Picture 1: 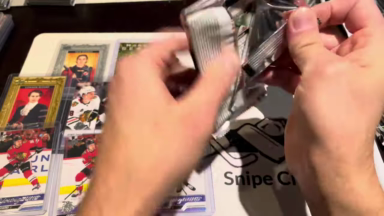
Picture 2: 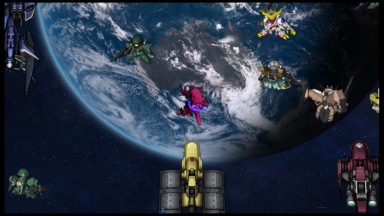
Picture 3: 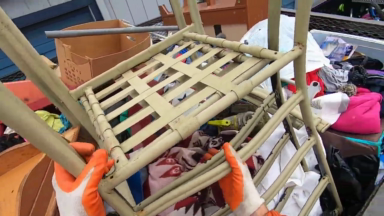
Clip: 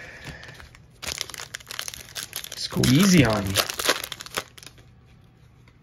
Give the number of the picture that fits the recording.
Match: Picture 1